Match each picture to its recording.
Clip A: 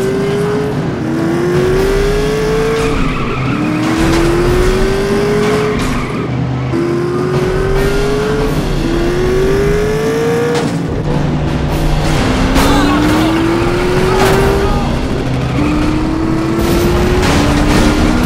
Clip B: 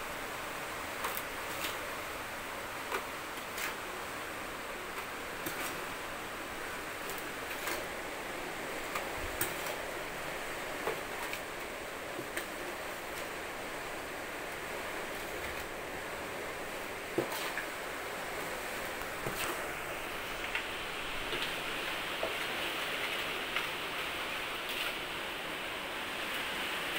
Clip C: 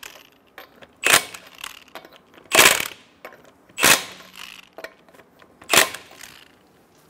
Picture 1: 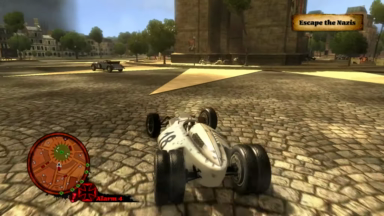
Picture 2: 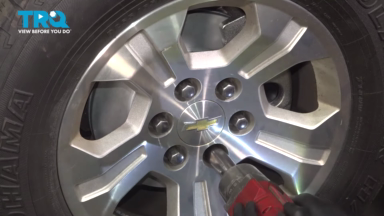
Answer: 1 A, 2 C